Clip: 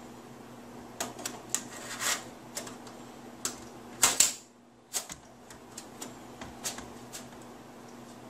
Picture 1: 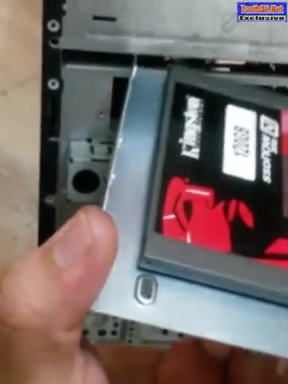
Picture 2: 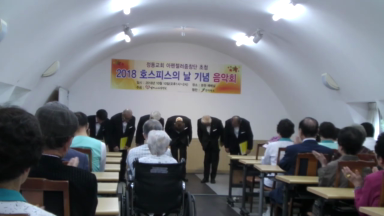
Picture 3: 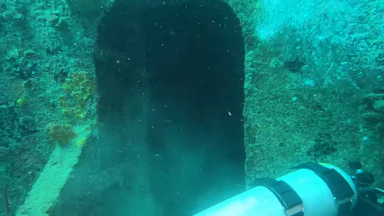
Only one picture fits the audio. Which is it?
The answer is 1